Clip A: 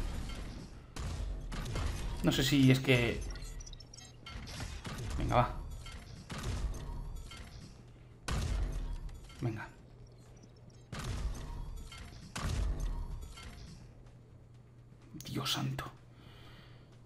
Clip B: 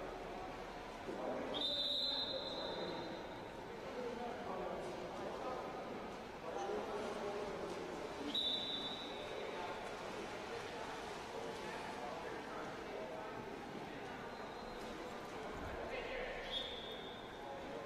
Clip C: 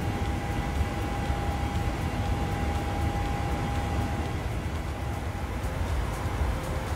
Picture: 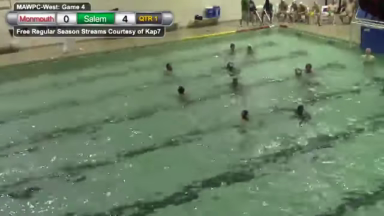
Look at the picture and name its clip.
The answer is B